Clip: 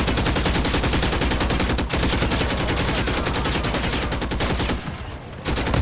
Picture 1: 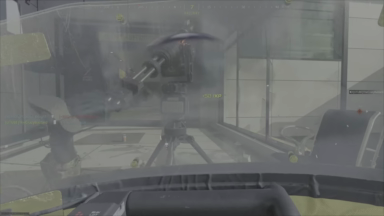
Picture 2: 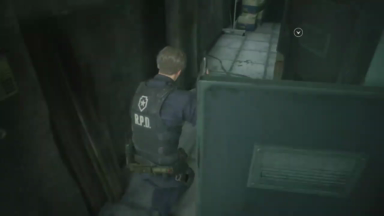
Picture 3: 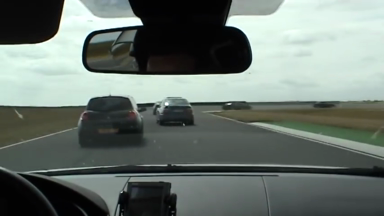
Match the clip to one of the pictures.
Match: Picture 1